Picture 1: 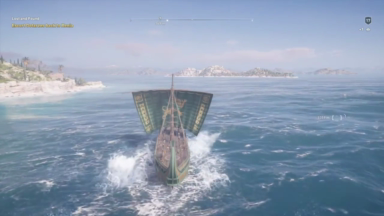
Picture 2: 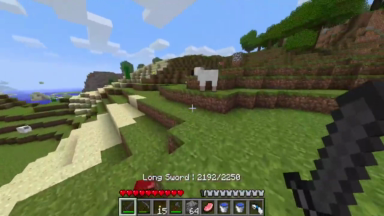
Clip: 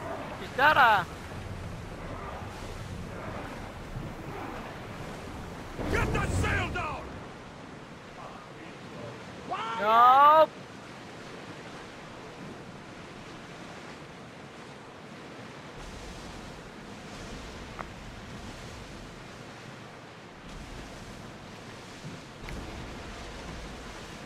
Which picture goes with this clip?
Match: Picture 1